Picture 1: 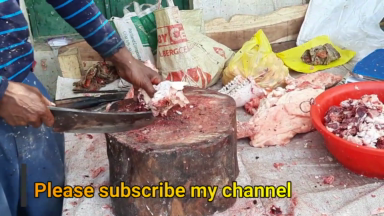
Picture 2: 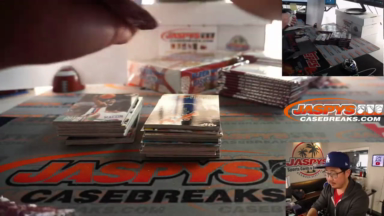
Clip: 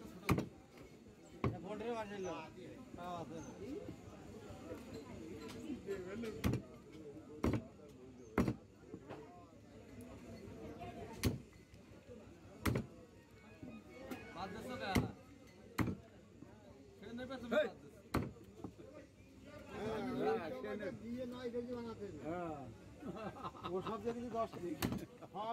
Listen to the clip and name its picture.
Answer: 1